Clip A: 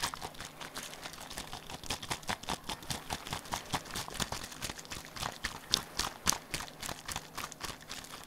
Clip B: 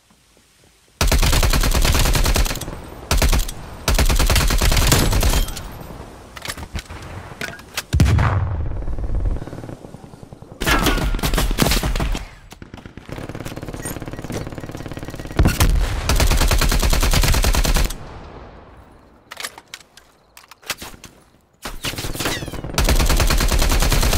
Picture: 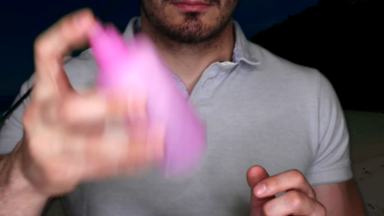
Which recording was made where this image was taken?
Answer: A